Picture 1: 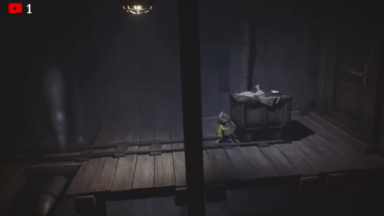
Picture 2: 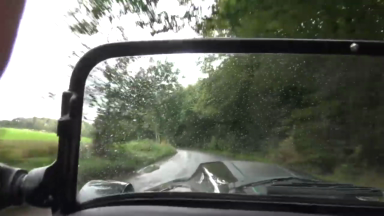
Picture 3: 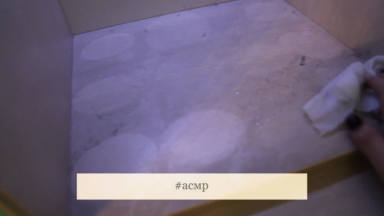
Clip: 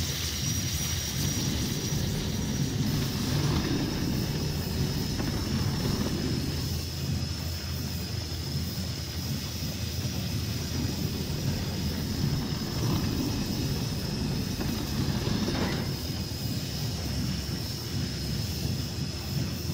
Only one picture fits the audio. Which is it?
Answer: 1